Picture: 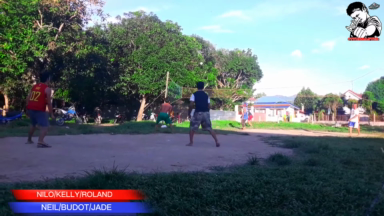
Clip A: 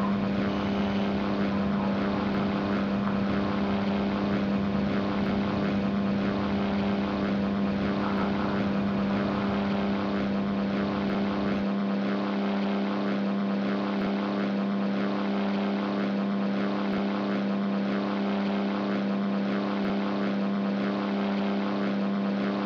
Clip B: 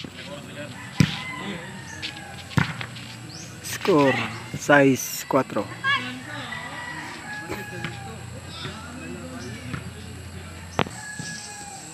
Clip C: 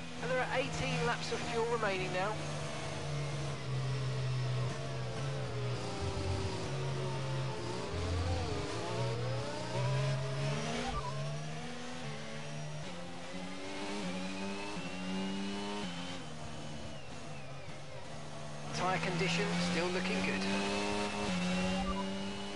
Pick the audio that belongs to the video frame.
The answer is B